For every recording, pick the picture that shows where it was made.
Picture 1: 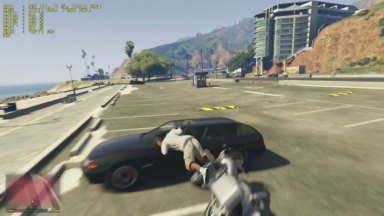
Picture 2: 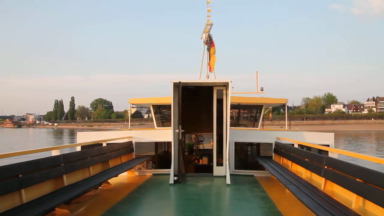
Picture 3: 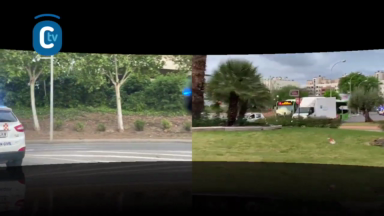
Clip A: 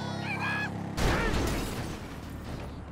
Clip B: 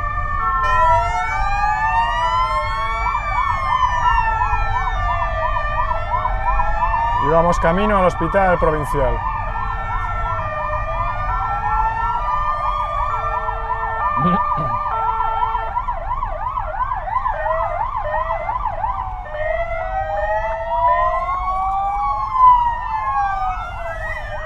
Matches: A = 1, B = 3